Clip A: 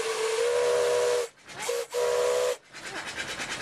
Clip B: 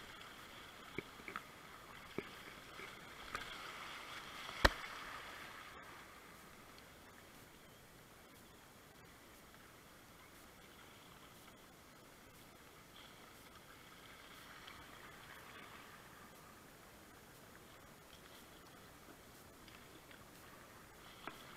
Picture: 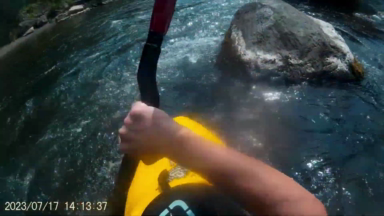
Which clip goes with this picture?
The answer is B